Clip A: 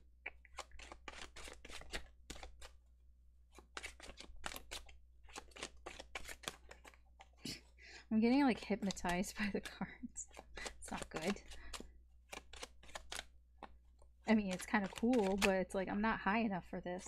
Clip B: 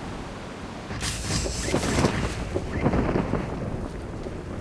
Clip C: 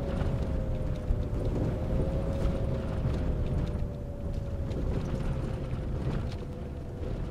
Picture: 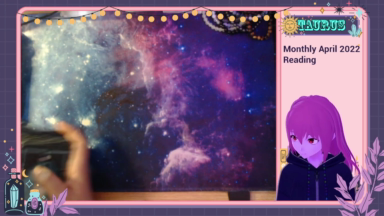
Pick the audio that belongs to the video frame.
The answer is A